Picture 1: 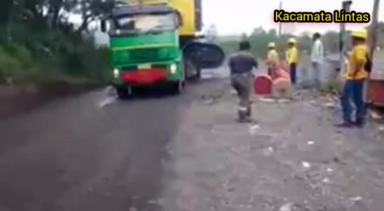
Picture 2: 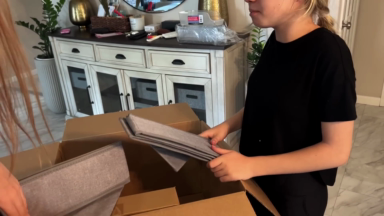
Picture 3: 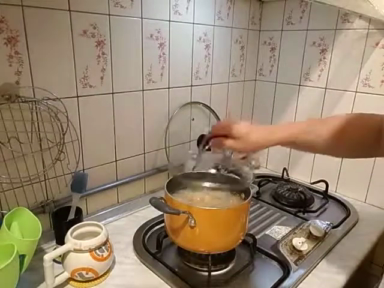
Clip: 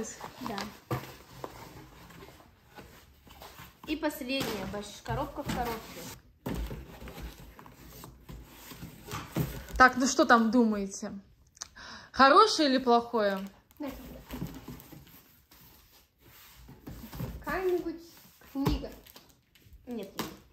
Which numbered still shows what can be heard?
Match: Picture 2